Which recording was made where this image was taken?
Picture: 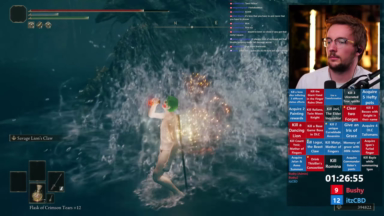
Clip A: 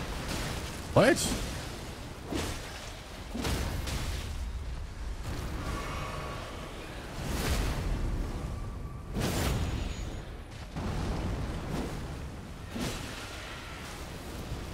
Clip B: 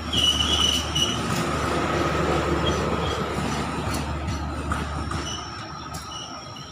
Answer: A